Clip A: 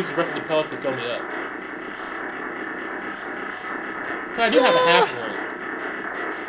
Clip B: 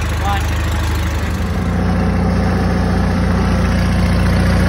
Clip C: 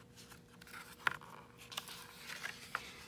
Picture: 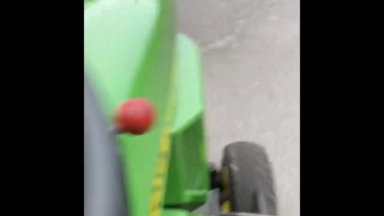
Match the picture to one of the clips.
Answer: B